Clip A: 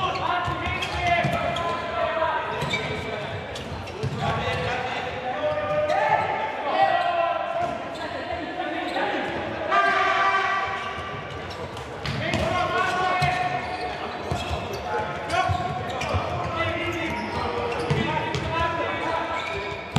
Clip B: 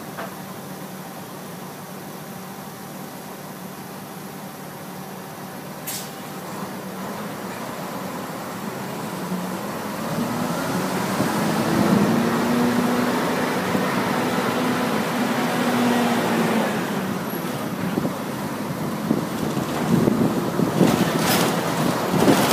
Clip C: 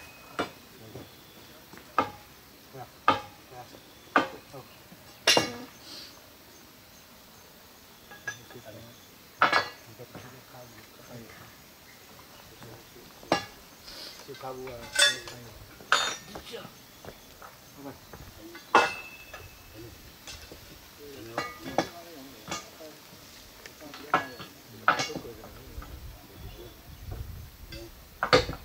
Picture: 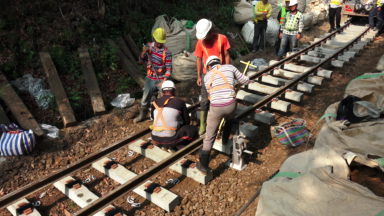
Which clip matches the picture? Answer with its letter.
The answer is C